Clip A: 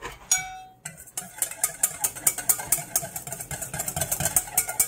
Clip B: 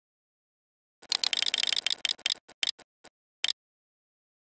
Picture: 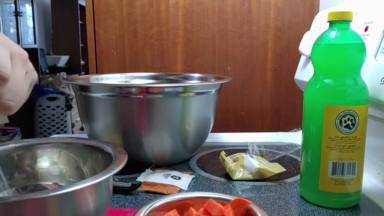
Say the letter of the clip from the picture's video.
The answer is A